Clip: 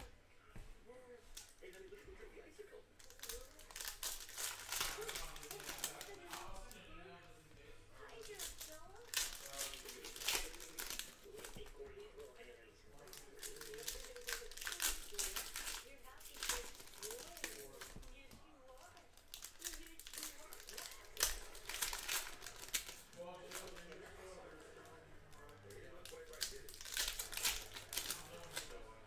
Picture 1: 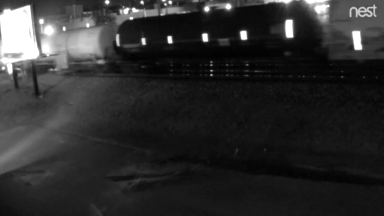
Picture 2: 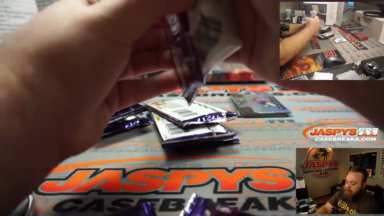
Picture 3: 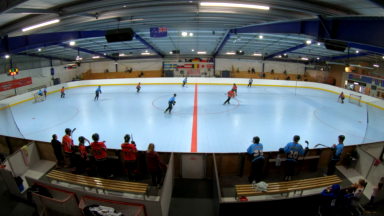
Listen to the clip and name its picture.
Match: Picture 2